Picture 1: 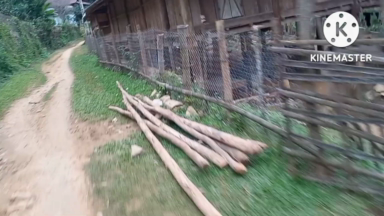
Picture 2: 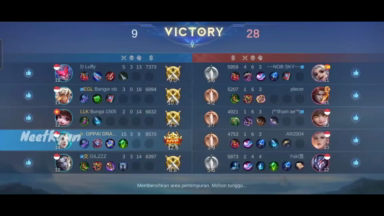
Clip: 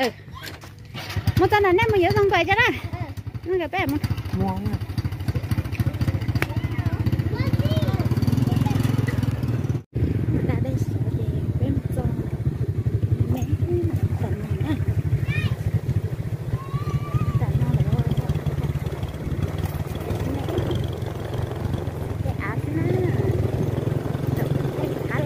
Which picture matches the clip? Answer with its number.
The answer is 1